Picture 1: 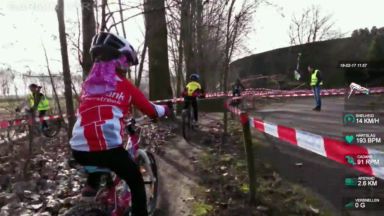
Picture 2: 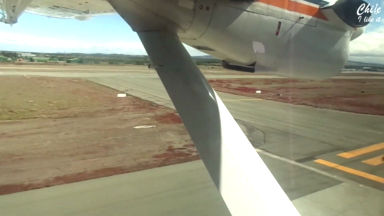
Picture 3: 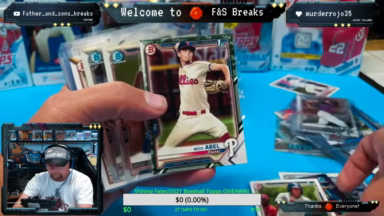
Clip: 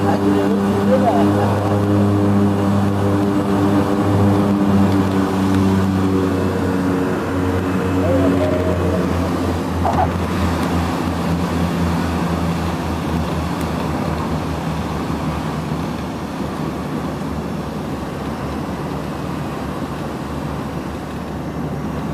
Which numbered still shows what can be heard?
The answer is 2